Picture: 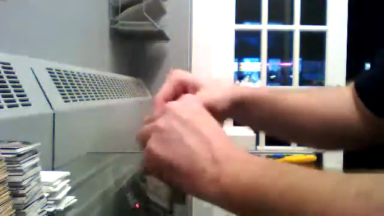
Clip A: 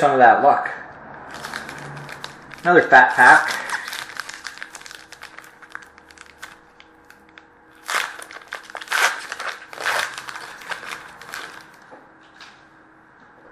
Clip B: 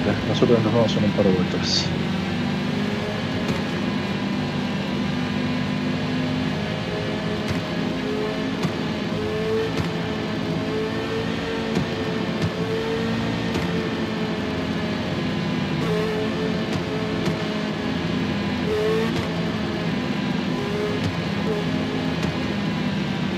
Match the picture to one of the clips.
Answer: A